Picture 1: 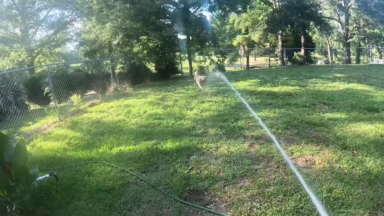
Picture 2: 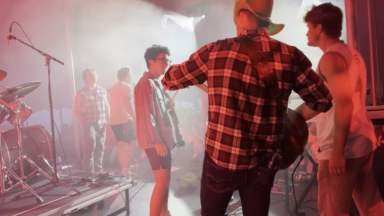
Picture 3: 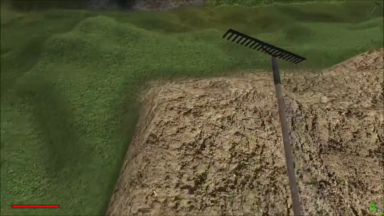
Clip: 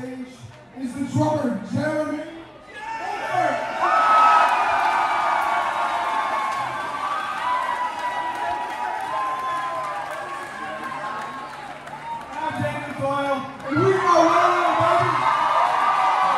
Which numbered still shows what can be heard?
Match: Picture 2